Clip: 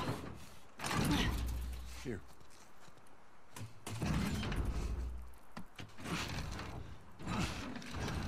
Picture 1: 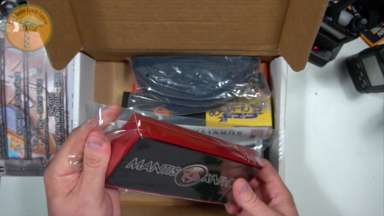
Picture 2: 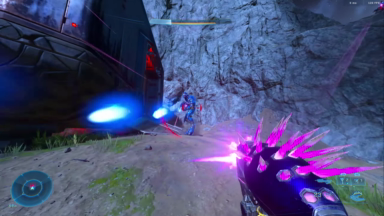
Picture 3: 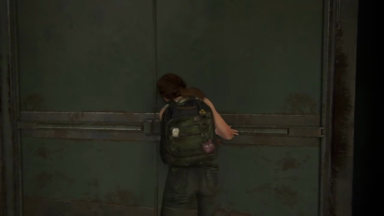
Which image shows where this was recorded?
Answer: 3